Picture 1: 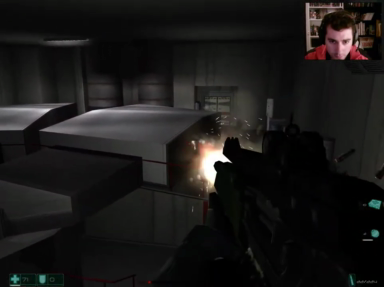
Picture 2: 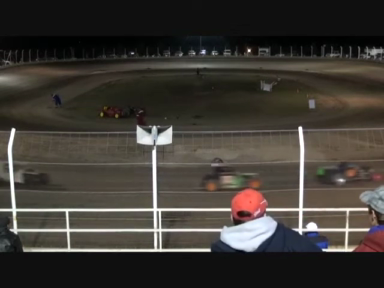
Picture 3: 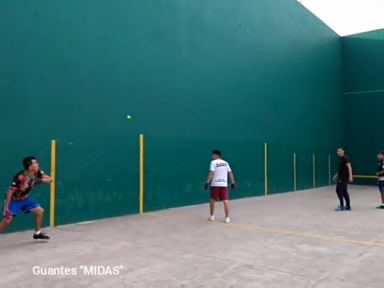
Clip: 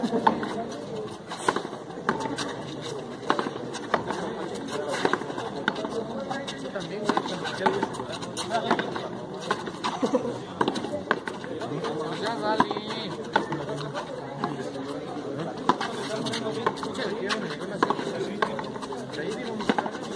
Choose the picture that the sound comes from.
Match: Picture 3